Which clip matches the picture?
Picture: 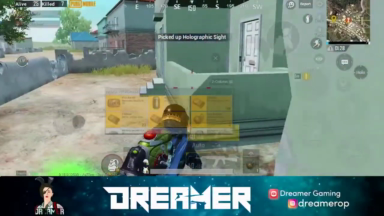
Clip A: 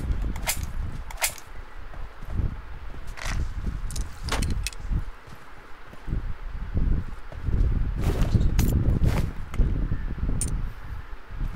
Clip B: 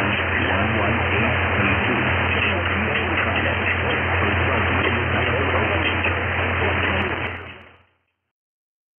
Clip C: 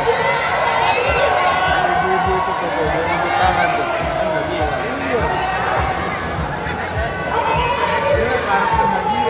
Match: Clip A